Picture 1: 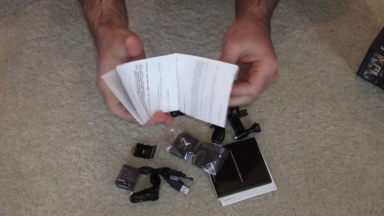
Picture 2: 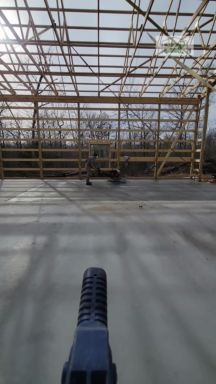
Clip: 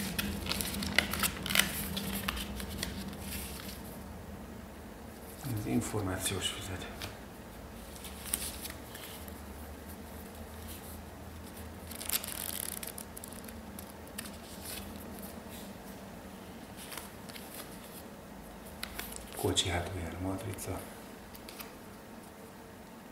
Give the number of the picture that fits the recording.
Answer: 1